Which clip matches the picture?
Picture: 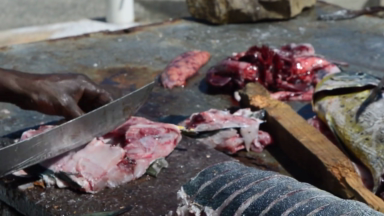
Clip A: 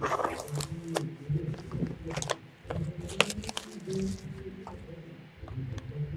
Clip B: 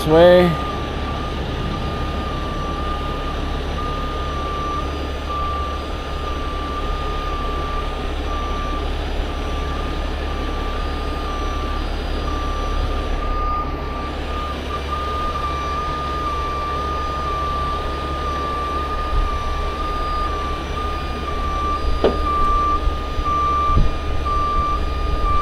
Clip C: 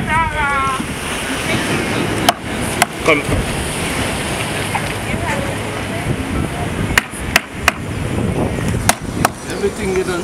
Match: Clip C